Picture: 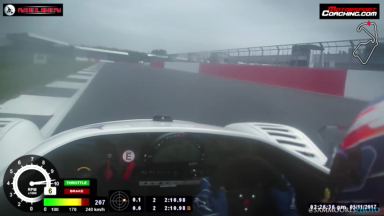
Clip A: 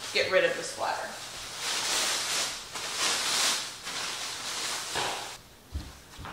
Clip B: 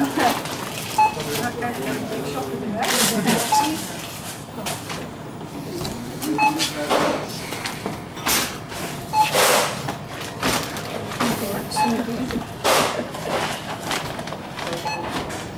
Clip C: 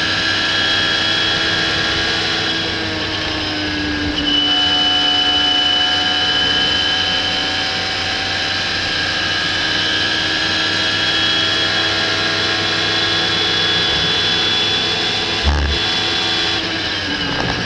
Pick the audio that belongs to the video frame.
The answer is C